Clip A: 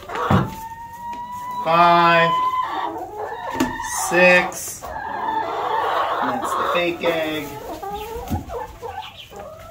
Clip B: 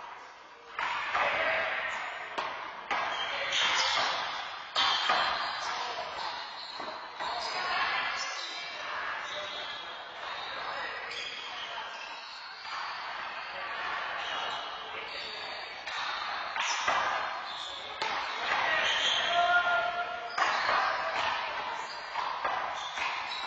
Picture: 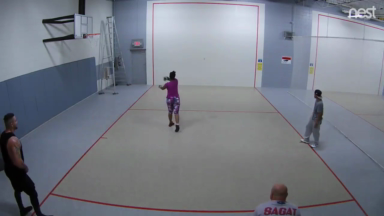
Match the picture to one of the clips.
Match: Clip B